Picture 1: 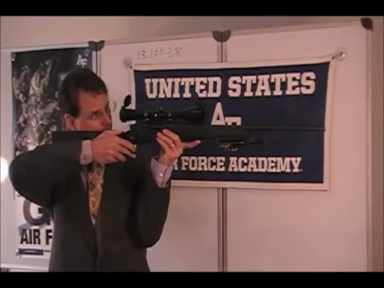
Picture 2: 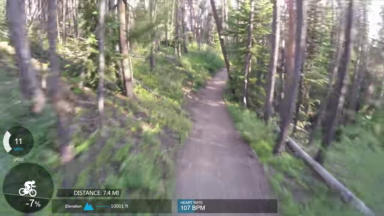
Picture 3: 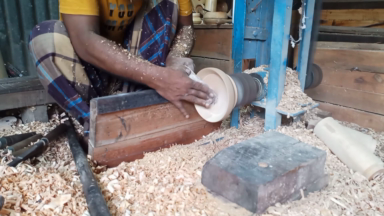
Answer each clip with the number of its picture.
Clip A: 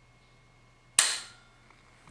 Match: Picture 1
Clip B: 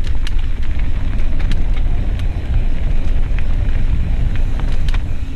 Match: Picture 2